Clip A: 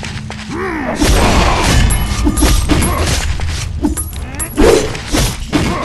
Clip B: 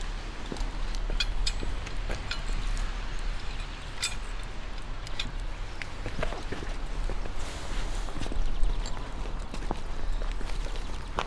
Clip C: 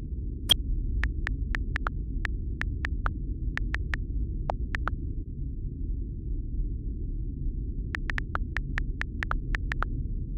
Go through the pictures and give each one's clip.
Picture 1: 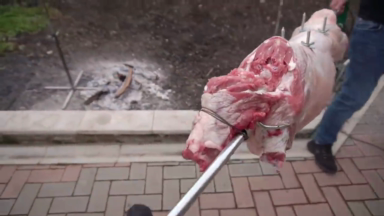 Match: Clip B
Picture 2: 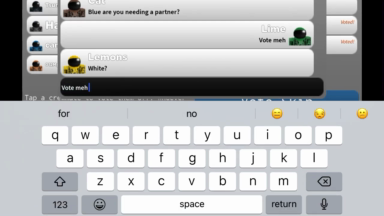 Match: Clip C